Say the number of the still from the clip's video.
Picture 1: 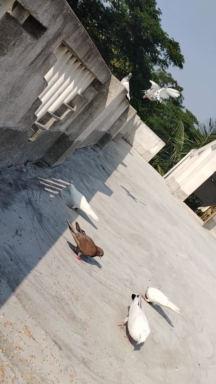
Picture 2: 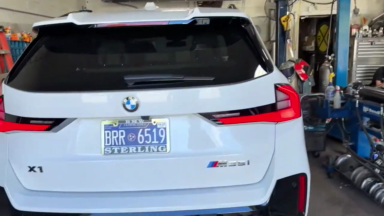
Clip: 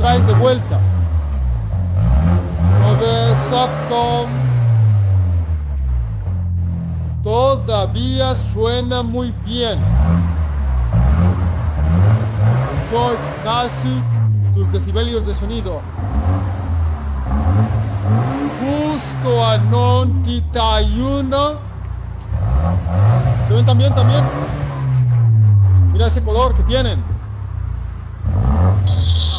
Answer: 2